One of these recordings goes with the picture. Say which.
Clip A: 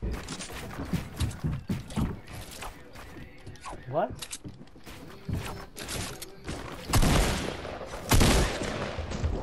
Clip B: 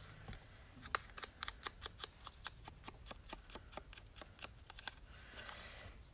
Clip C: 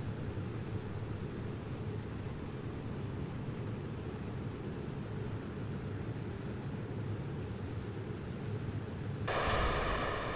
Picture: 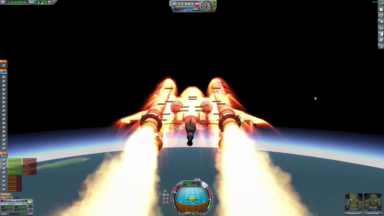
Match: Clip C